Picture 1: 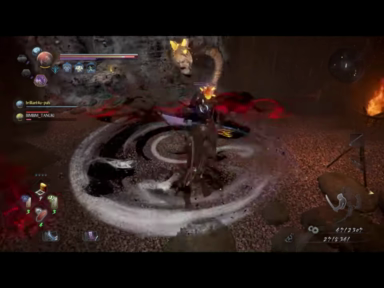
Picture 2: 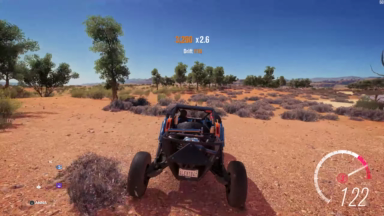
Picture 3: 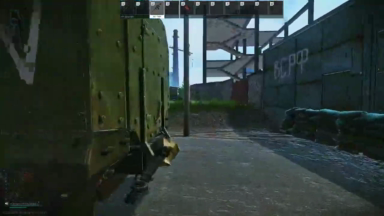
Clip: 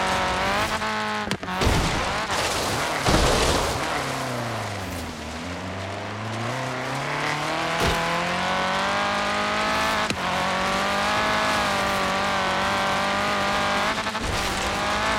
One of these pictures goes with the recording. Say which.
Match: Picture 2